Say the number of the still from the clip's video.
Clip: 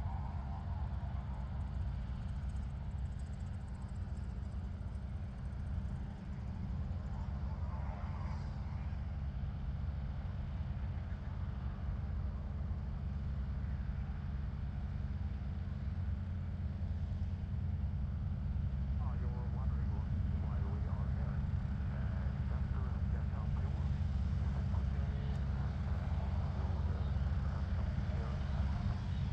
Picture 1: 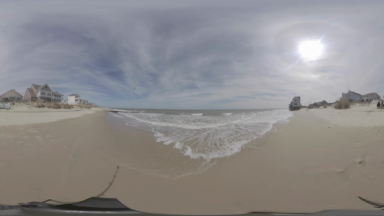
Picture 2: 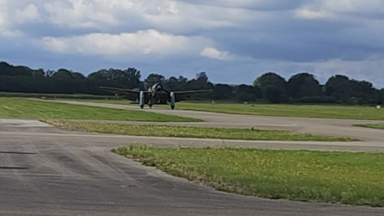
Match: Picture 2